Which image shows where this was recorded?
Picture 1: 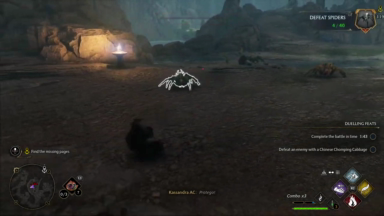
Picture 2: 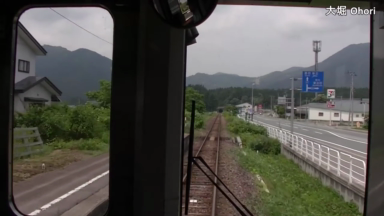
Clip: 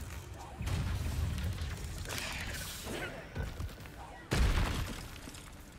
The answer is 1